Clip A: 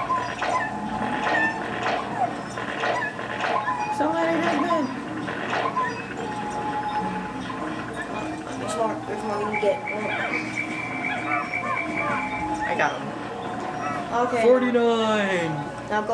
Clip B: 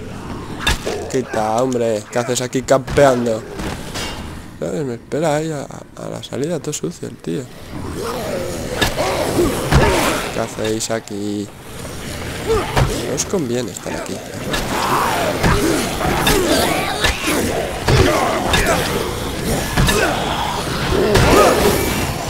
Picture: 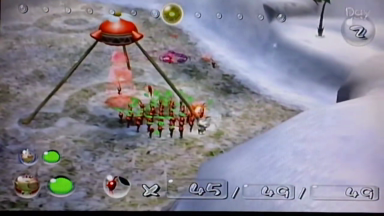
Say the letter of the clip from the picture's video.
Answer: A